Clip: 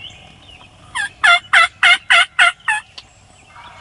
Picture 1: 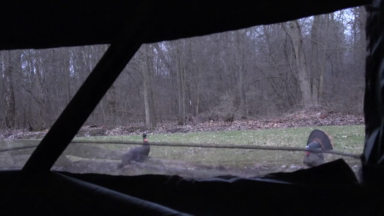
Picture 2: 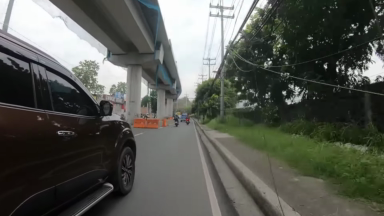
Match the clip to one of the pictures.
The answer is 1